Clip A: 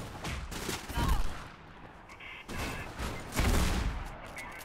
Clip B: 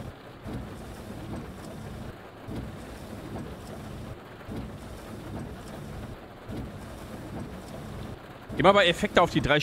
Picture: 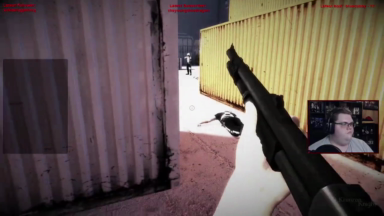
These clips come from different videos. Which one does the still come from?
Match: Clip A